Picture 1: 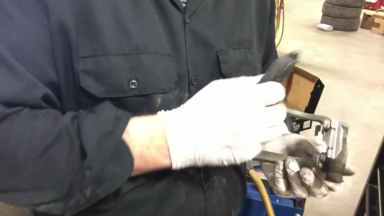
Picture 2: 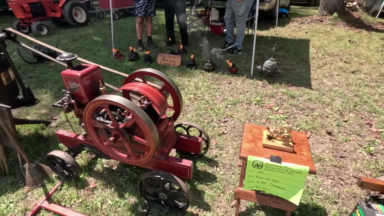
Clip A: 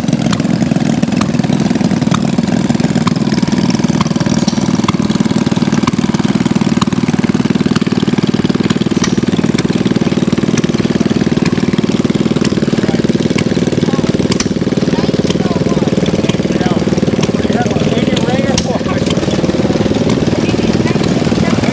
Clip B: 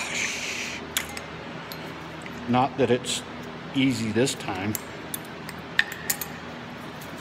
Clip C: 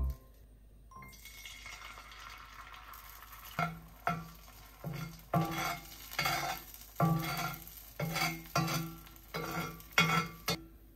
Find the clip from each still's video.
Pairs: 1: B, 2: A